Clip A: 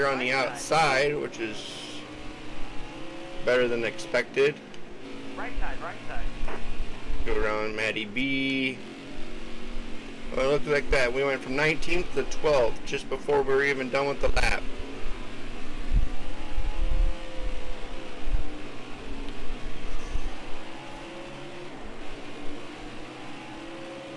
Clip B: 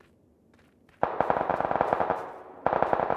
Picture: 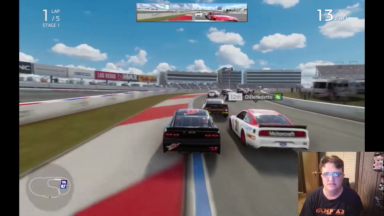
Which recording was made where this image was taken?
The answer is A